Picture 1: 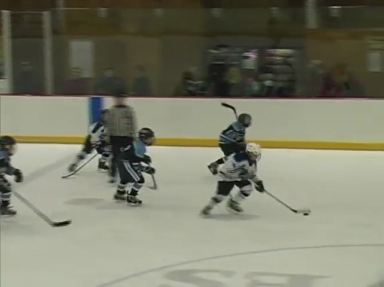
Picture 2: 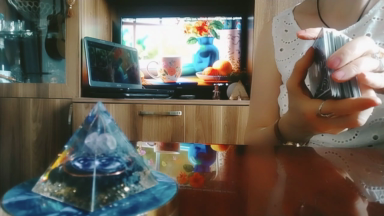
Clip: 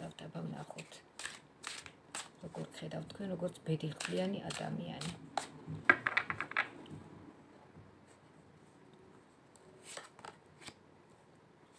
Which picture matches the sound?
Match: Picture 2